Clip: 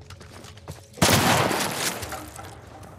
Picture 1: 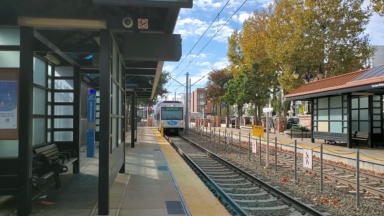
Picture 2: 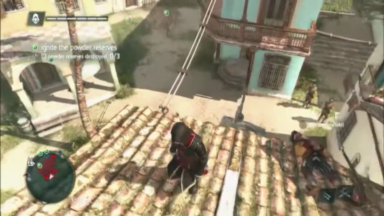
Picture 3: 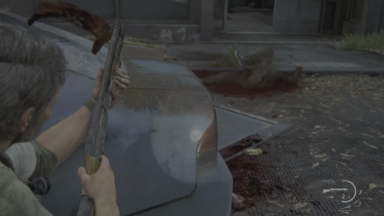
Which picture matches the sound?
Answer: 3